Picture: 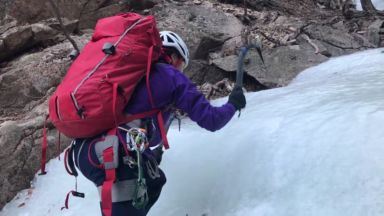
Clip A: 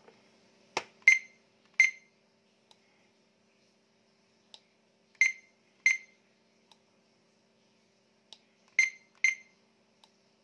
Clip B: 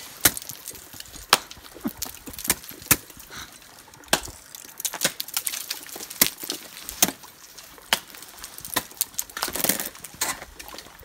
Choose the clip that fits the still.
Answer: B